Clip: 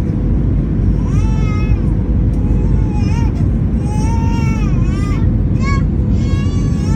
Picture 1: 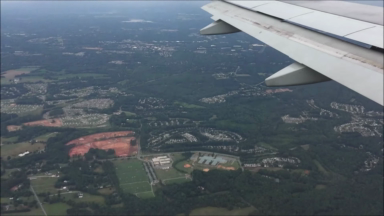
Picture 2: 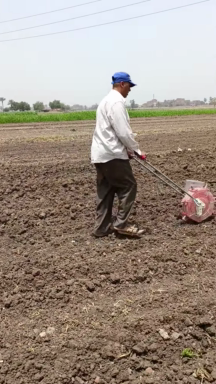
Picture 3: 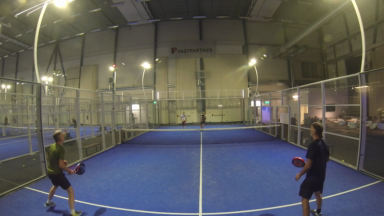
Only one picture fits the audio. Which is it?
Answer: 1